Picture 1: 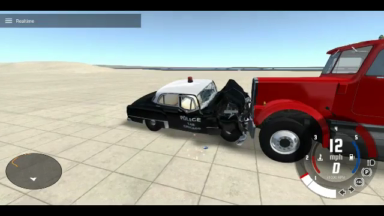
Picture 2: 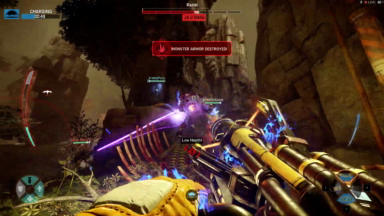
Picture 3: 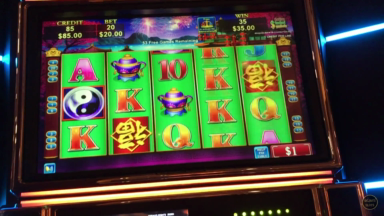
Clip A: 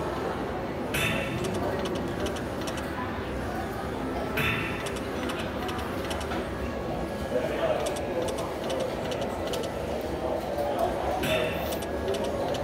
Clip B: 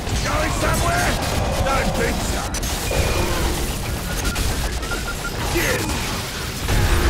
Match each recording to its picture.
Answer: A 3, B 2